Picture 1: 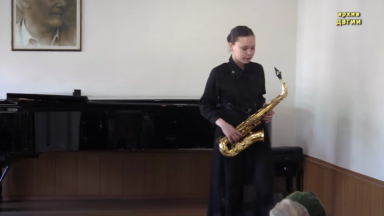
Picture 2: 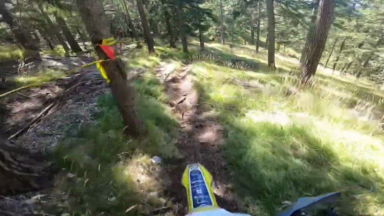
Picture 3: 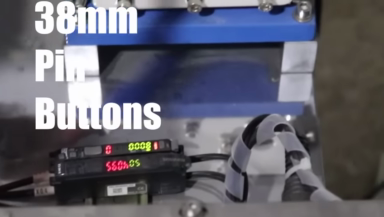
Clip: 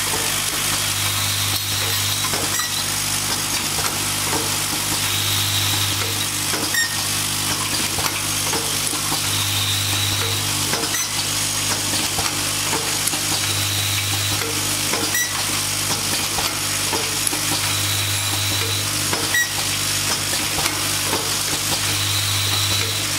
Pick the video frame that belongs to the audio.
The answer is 3